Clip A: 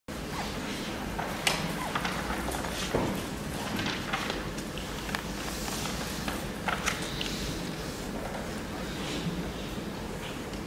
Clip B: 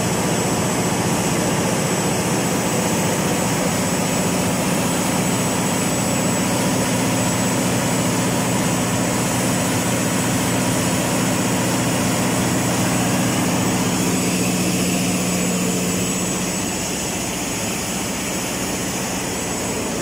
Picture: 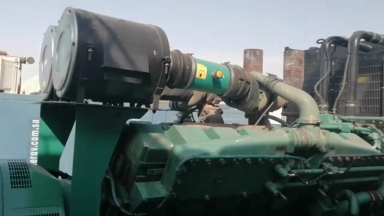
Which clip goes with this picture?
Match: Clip B